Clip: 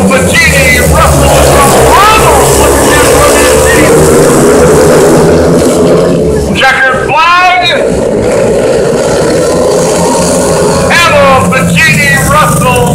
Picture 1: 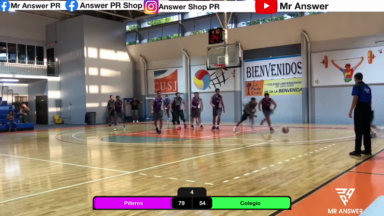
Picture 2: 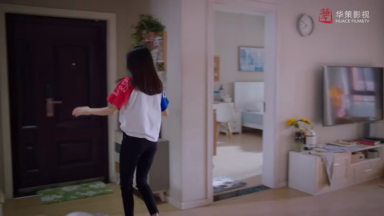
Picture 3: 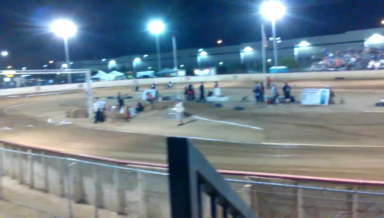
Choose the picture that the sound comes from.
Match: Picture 3